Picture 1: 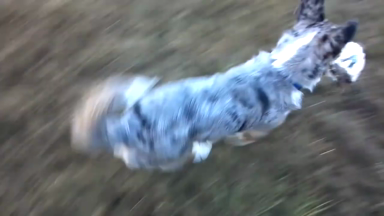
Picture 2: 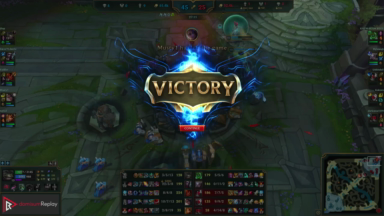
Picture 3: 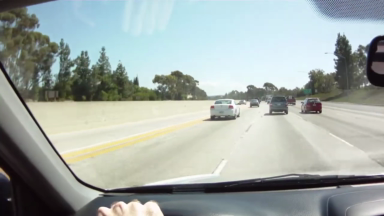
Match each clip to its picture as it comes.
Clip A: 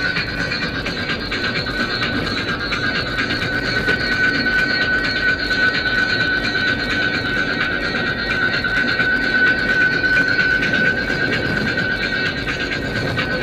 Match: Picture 3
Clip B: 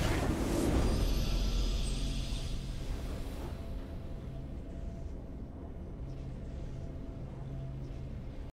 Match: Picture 2